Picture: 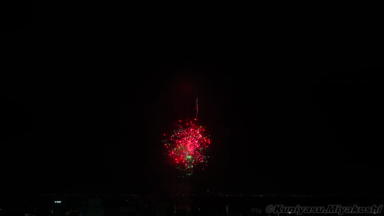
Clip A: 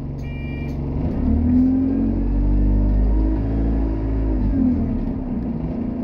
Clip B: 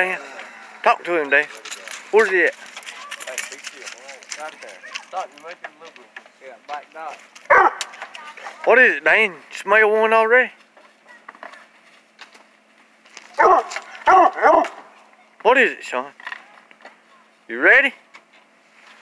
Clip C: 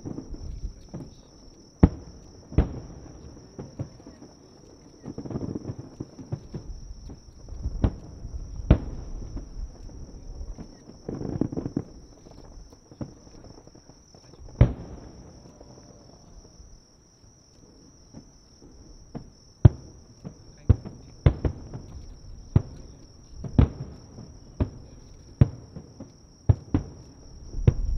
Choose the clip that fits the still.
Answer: C